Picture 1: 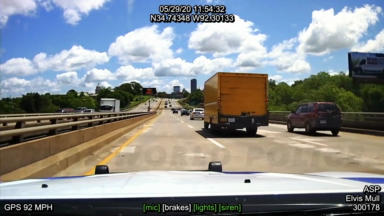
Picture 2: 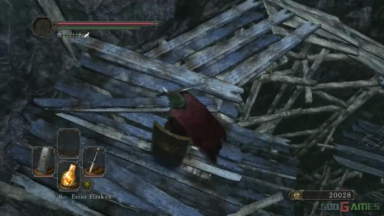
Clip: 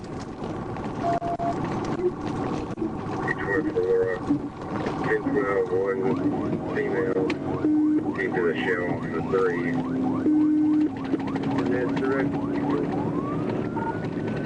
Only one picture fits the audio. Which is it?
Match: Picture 1